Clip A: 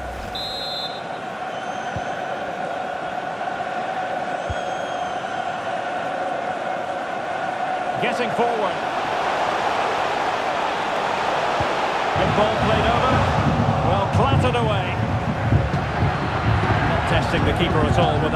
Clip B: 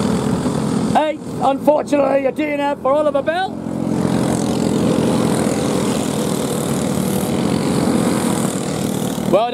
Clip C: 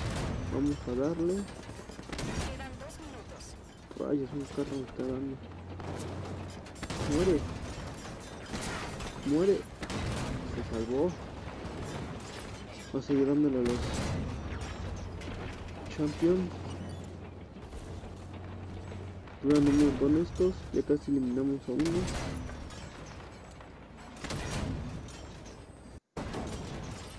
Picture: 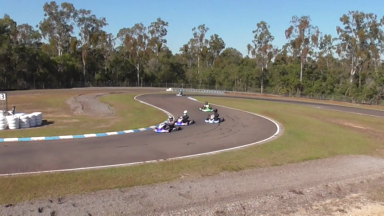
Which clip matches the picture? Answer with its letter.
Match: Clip B